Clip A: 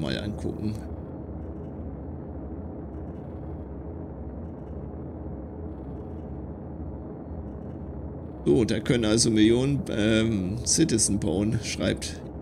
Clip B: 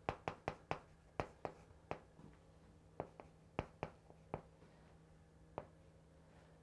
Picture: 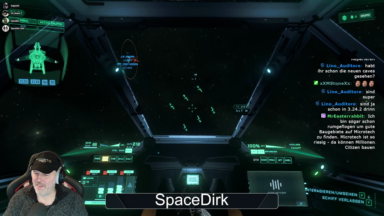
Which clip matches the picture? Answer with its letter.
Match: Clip A